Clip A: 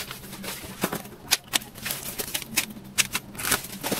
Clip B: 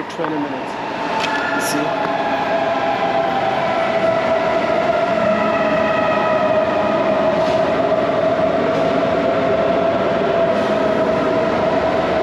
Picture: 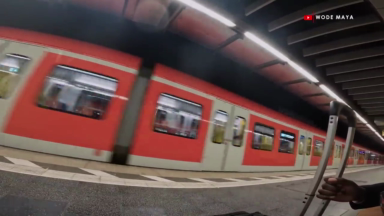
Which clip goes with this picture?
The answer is B